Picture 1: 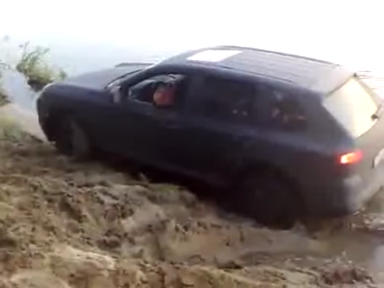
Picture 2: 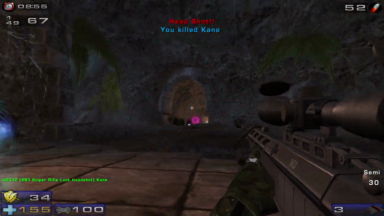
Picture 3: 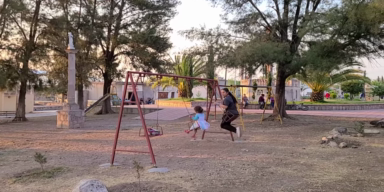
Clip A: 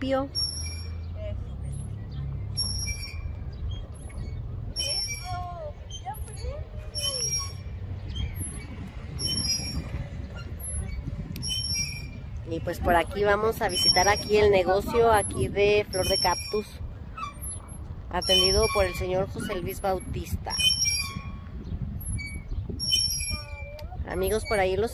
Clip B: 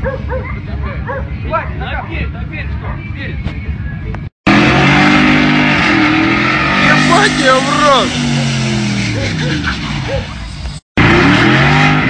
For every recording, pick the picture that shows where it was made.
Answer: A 3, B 1